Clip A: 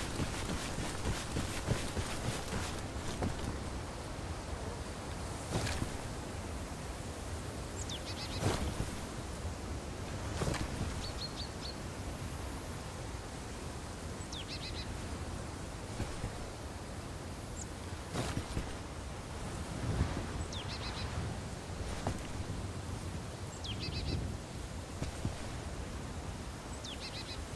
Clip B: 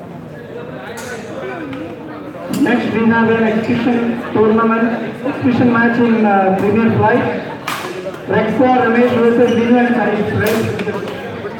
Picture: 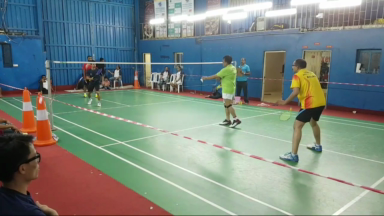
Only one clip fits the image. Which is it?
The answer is B